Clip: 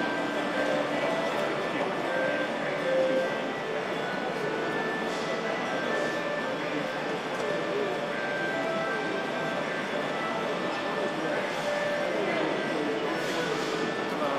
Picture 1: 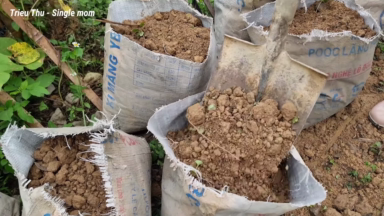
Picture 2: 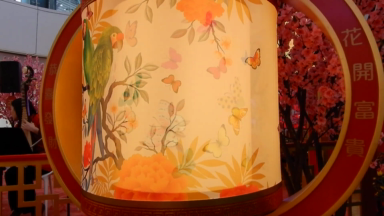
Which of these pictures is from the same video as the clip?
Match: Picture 2